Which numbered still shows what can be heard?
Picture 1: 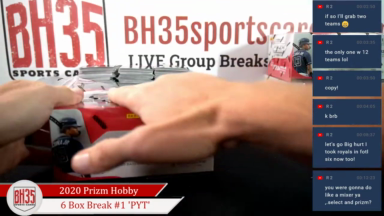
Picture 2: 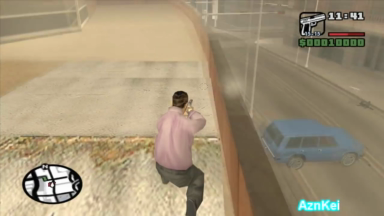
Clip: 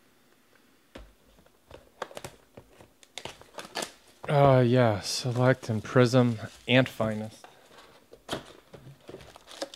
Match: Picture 1